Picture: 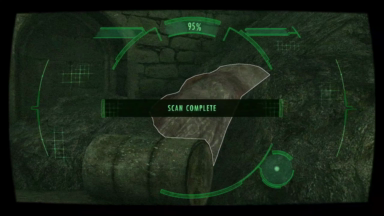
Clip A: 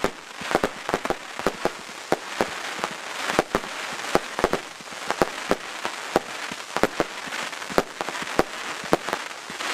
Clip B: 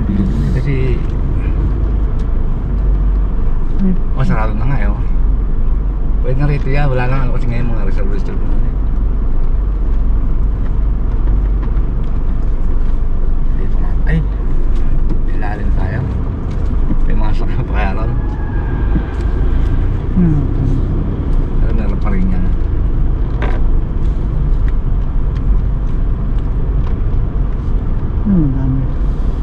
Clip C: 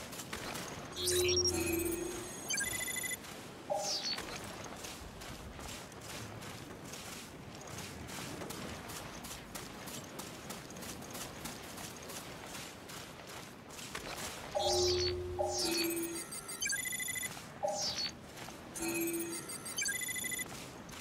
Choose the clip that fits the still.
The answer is C